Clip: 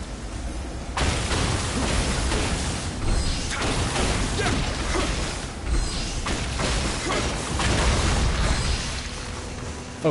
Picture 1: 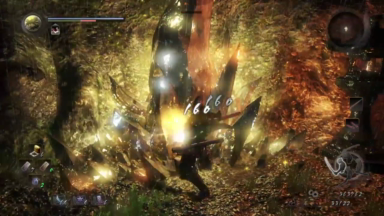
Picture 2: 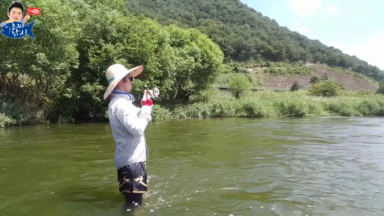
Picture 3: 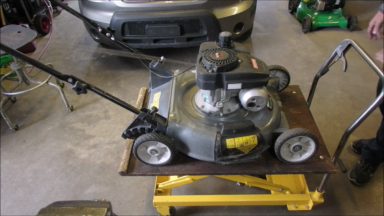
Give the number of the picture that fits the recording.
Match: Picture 1